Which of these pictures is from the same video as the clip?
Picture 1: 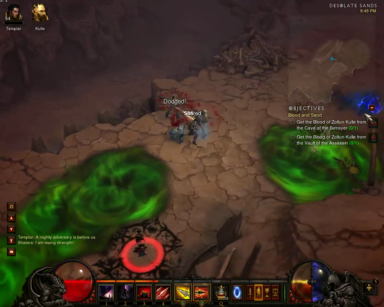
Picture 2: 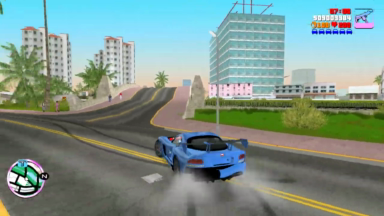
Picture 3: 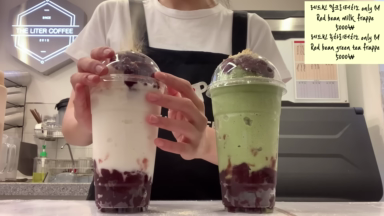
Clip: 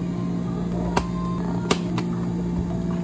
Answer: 3